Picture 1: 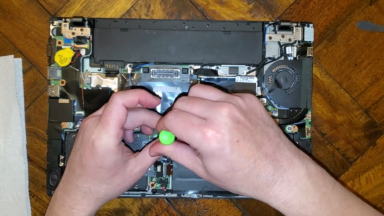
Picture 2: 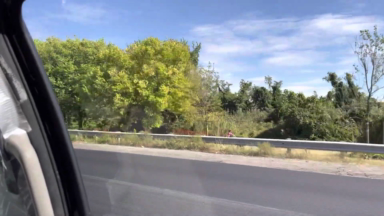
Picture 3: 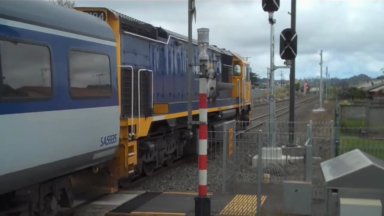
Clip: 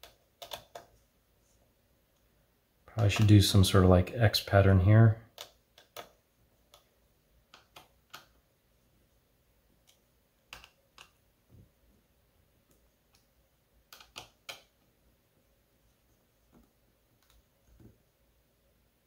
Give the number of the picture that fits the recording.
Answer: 1